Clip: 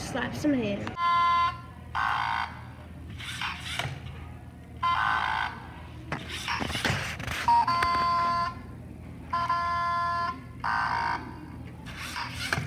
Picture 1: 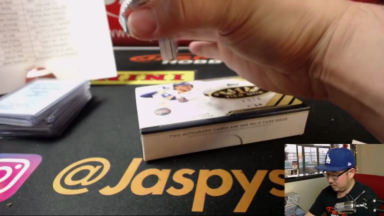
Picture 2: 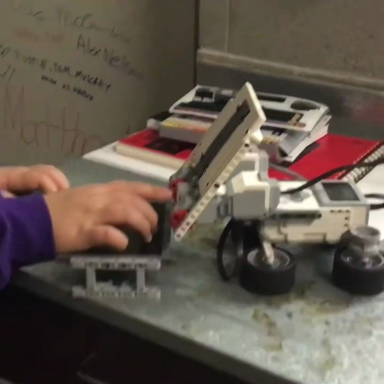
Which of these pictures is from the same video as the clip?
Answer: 2